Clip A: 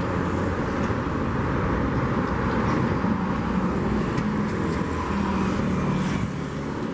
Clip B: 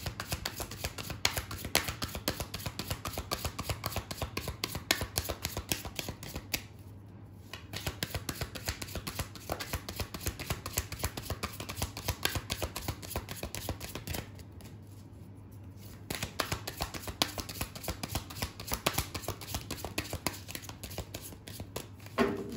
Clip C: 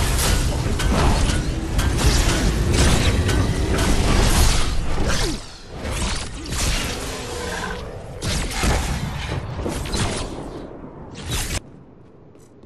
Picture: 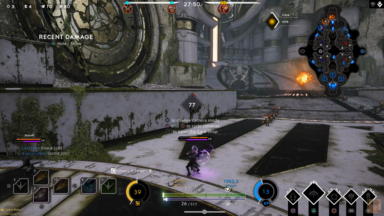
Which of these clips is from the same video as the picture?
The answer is C